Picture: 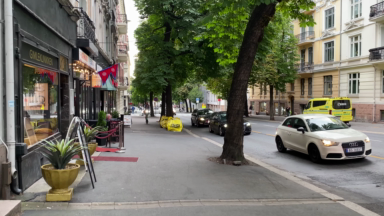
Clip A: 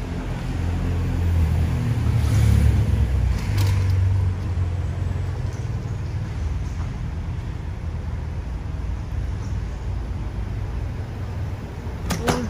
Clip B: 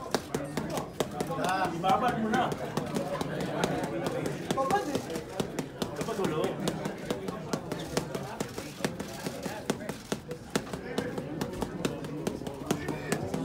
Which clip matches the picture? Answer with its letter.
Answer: A